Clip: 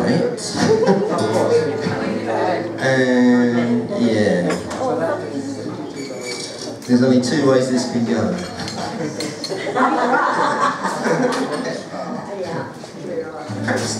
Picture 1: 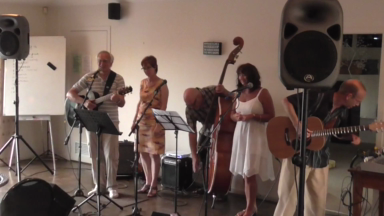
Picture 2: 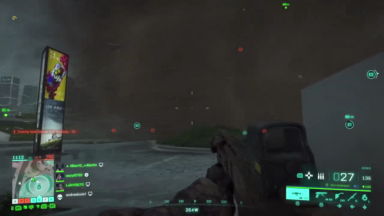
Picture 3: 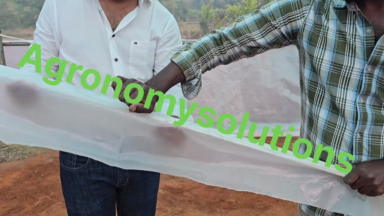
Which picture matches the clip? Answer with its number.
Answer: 1